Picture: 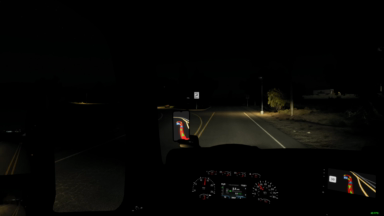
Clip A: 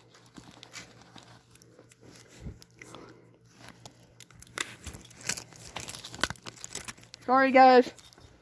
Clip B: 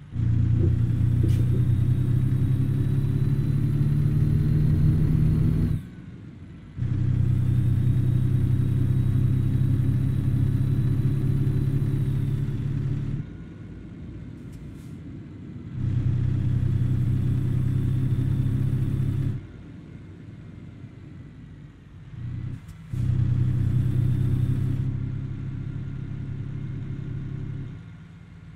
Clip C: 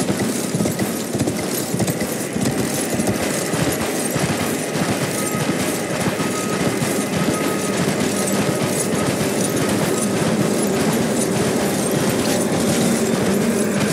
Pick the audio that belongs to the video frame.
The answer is B